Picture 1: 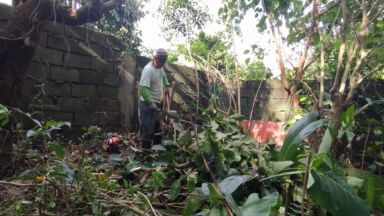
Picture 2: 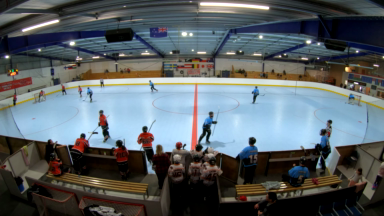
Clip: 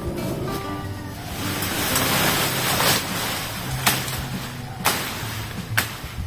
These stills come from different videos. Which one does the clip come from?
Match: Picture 1